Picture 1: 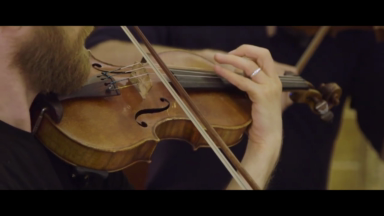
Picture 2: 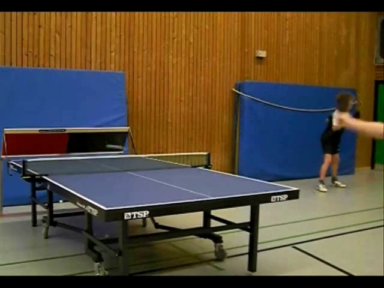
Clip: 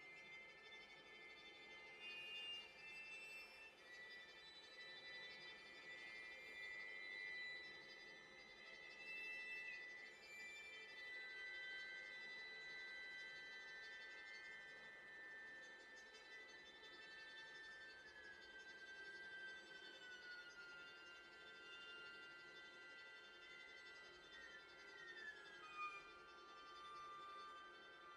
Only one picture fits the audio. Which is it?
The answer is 1